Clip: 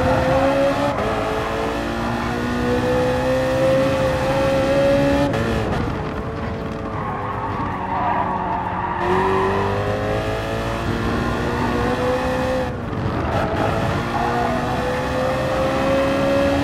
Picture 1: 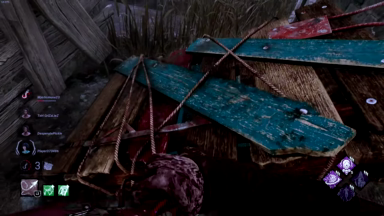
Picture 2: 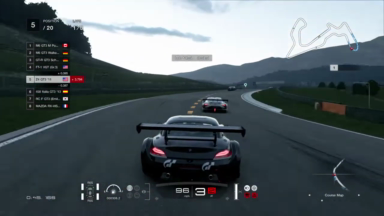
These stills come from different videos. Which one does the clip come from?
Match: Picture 2